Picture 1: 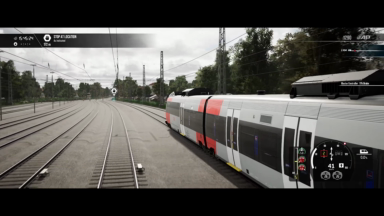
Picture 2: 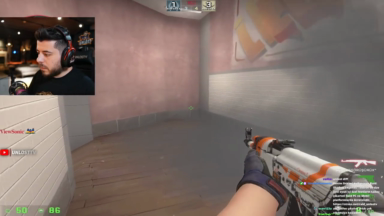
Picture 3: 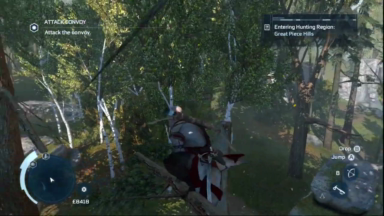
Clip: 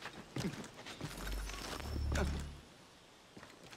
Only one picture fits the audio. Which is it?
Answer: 3